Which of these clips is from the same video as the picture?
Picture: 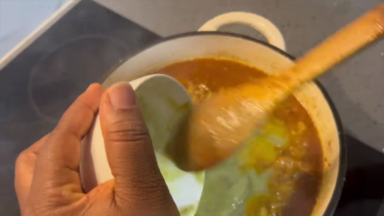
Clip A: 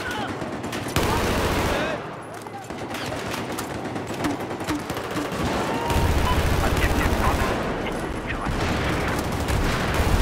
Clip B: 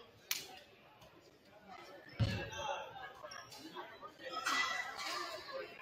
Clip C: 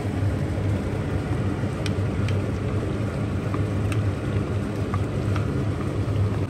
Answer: C